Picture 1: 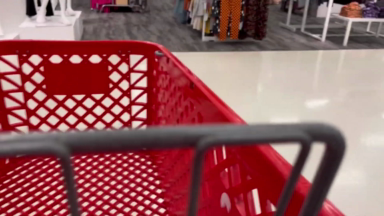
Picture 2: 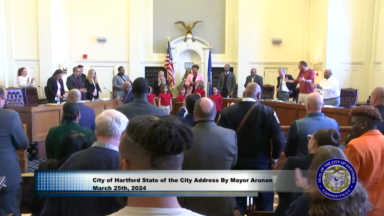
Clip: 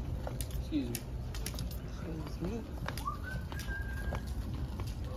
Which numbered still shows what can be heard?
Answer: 1